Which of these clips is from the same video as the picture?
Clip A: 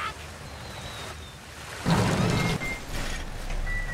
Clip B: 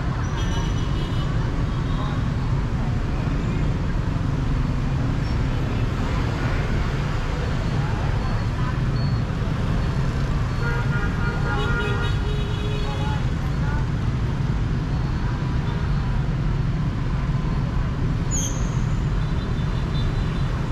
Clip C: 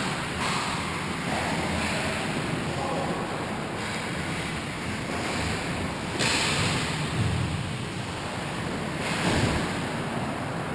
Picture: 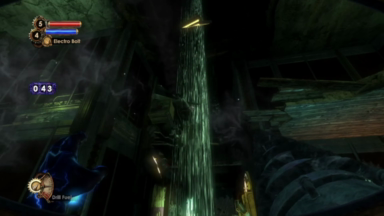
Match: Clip A